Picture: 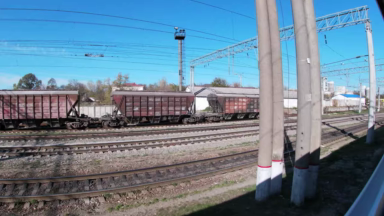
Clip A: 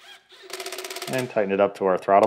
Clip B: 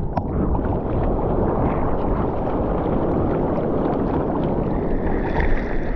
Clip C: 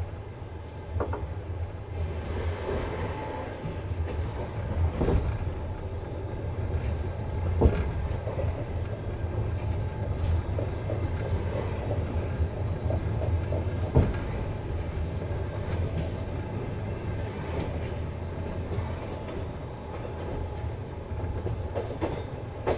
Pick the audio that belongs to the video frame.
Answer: C